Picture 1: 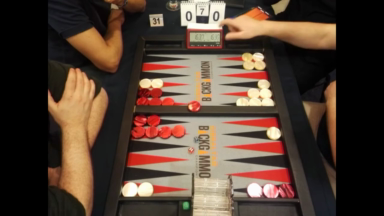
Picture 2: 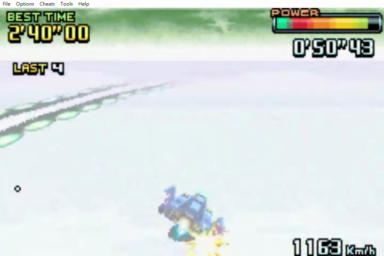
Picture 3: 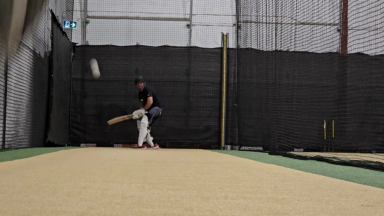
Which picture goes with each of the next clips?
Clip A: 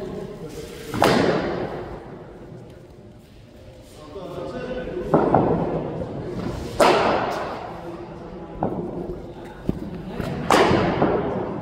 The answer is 3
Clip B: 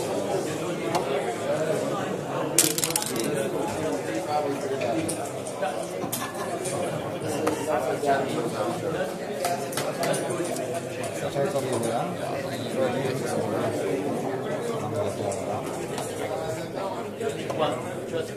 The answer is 1